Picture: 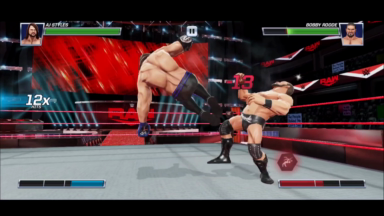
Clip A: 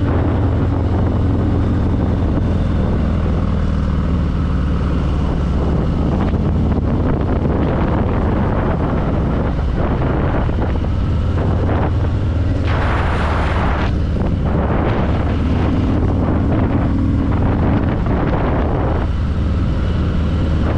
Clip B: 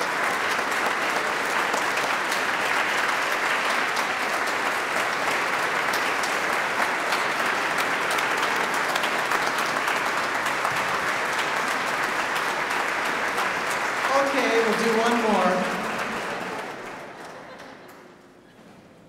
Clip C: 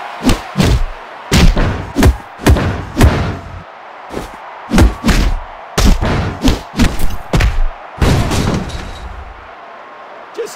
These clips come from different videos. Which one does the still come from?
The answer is C